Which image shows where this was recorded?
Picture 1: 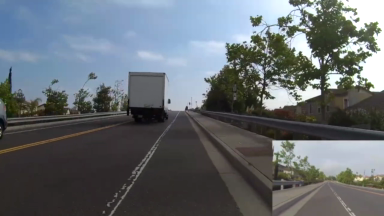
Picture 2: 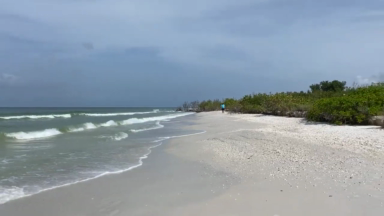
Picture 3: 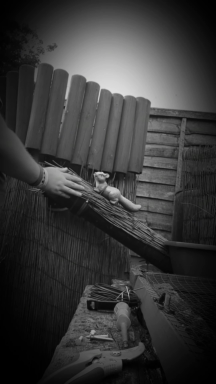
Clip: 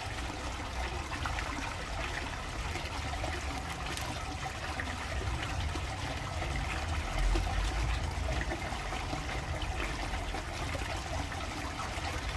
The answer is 3